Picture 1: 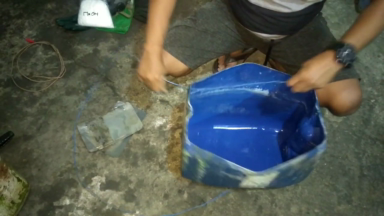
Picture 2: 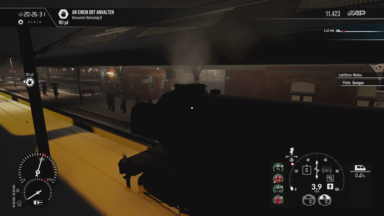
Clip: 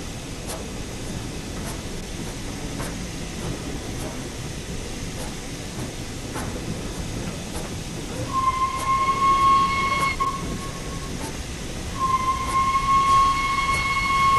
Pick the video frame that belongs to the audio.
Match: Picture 2